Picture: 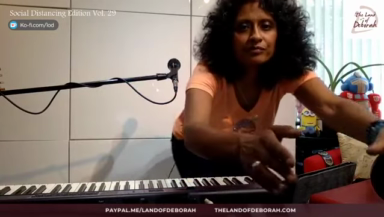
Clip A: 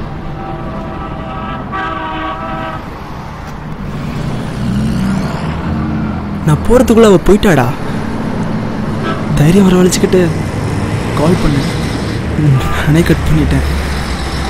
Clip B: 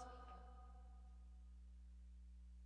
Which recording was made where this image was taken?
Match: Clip B